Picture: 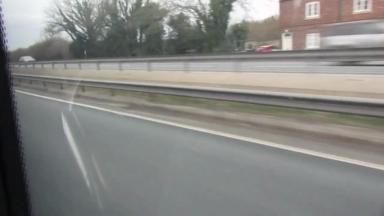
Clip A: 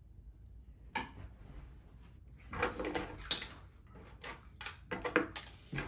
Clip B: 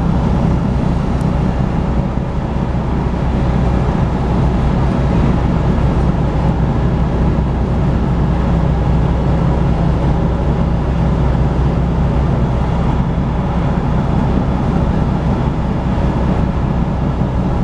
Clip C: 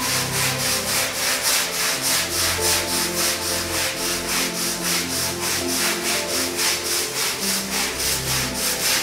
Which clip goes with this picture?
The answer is B